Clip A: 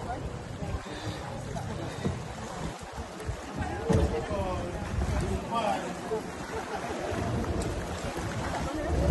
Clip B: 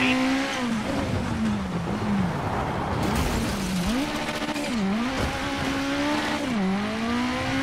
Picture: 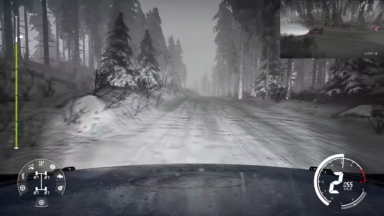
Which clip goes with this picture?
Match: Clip B